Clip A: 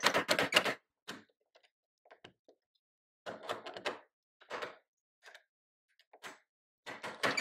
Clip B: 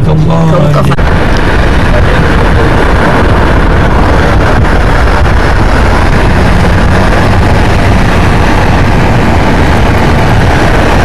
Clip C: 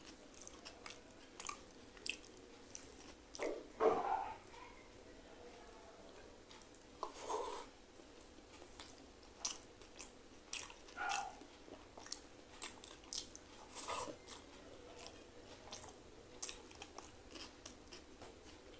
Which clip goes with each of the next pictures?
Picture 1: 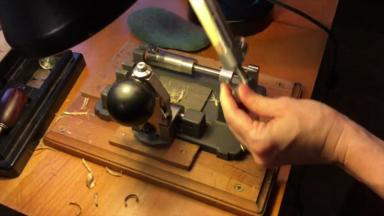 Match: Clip A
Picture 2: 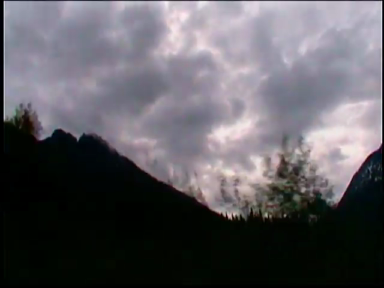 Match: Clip B